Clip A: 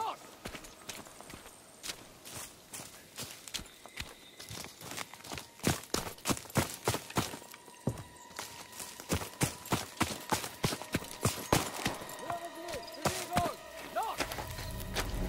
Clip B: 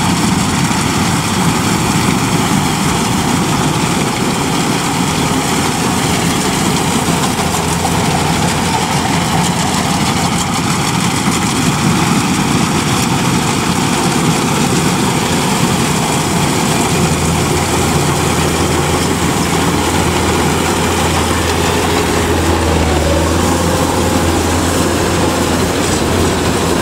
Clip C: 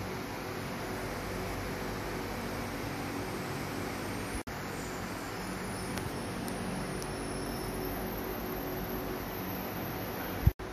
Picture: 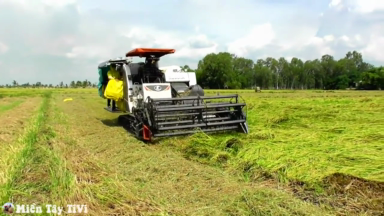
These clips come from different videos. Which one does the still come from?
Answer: B